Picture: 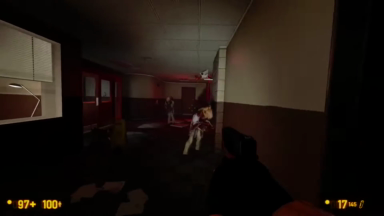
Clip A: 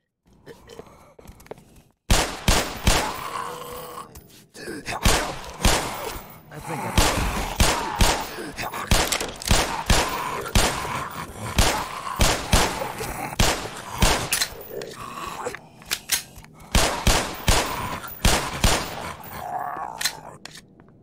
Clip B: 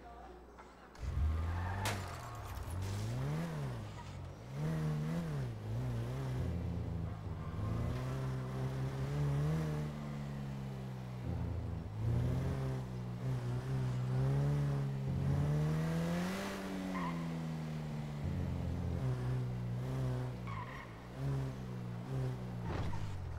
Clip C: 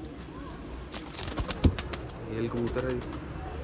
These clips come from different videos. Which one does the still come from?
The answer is A